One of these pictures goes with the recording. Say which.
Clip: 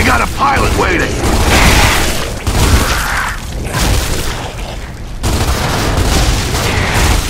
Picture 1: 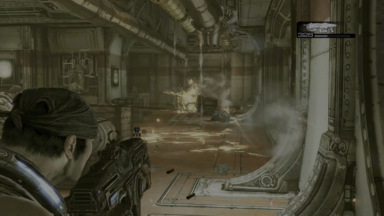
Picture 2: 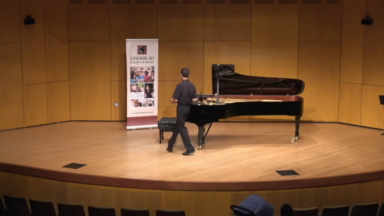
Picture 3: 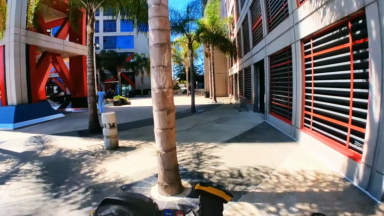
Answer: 1